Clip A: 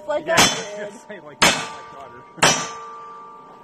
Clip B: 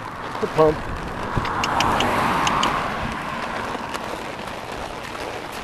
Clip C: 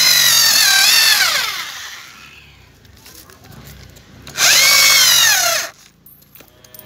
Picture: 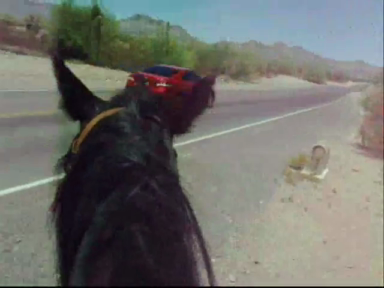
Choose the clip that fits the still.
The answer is B